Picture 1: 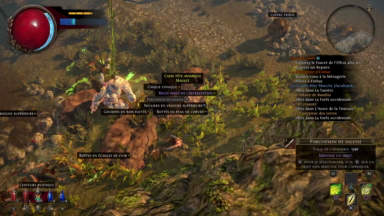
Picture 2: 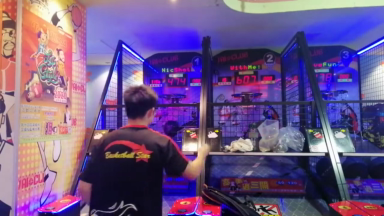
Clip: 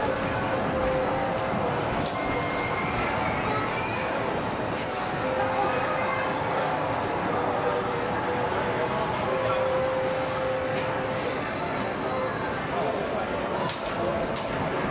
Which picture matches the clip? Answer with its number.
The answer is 2